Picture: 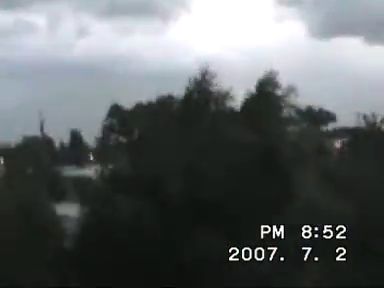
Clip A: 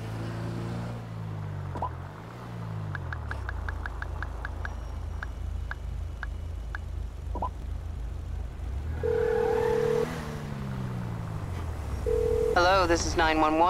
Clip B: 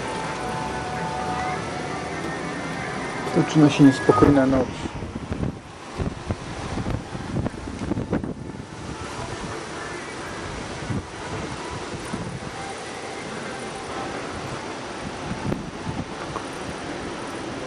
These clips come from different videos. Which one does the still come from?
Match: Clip B